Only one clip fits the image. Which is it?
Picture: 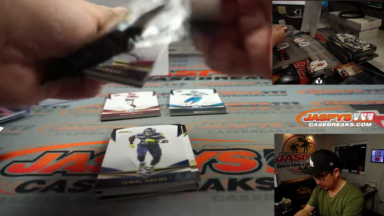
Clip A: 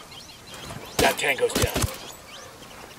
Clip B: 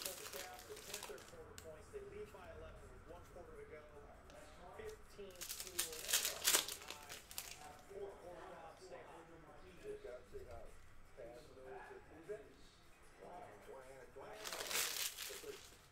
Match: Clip B